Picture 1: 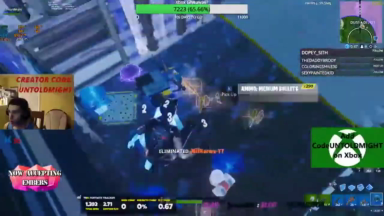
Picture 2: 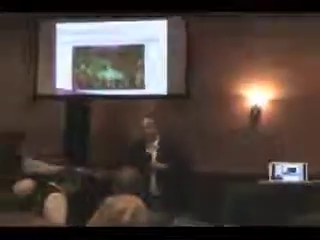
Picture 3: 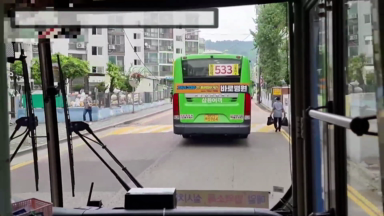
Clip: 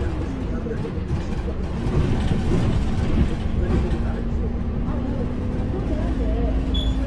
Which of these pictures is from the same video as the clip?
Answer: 3